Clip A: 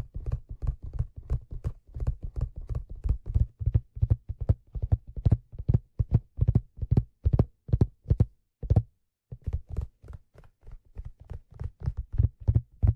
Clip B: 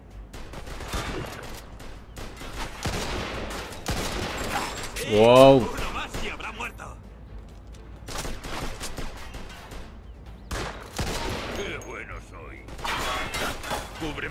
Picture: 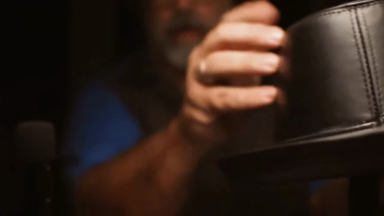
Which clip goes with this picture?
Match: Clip A